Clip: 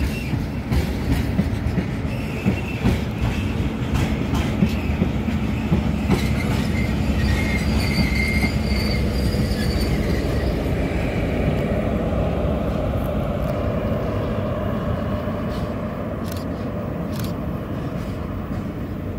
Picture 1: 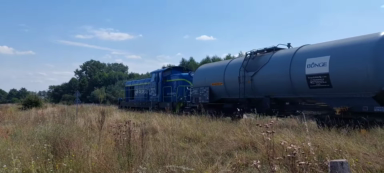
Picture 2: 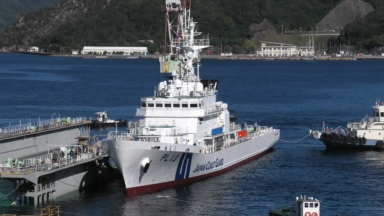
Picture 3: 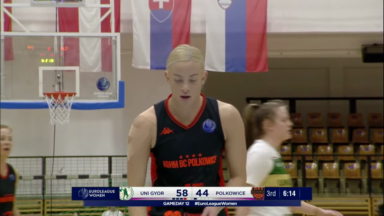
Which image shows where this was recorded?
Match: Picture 1